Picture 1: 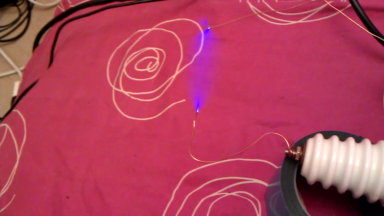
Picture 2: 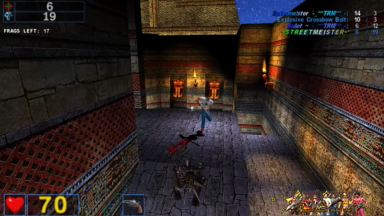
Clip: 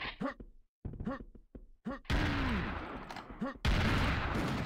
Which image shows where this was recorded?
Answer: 2